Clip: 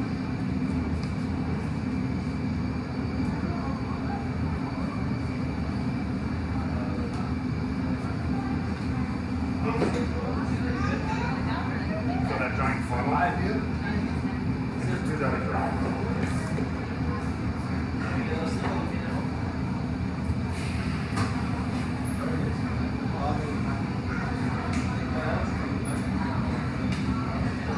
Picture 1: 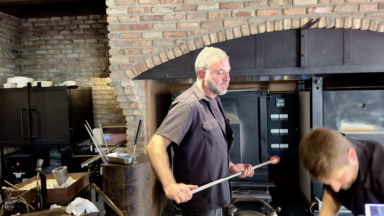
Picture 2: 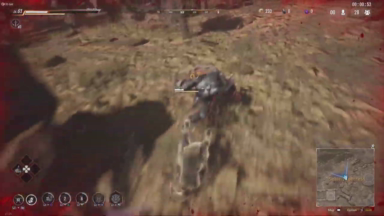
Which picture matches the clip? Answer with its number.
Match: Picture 1